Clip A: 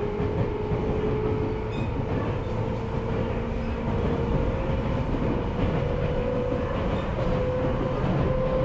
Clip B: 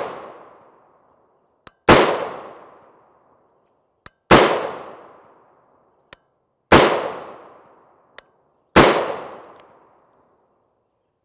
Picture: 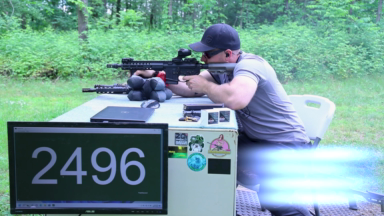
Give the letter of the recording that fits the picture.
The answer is B